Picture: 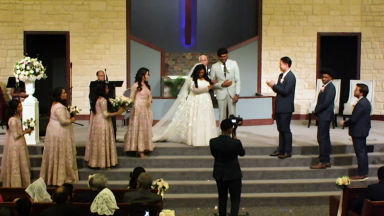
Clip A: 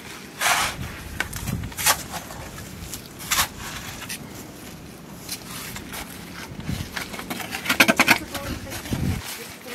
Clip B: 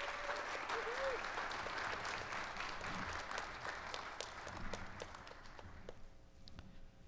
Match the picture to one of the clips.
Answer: B